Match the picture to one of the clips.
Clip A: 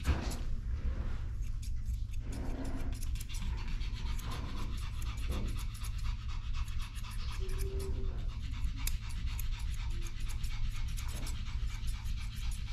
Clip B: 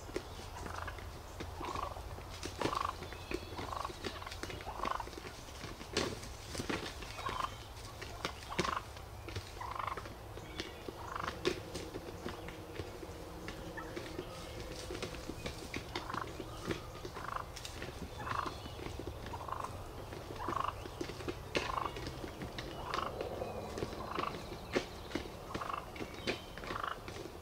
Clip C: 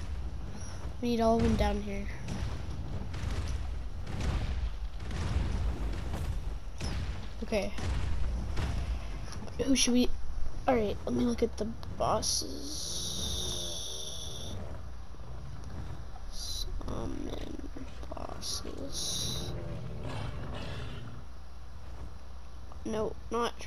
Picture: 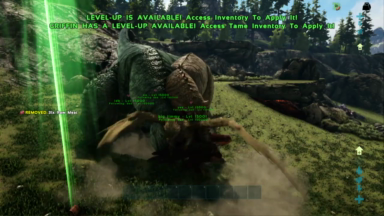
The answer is C